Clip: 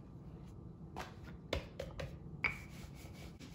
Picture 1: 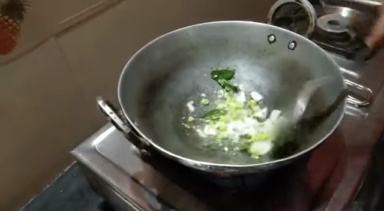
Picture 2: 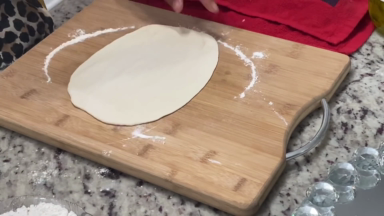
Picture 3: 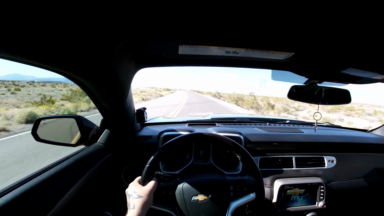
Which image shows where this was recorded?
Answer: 2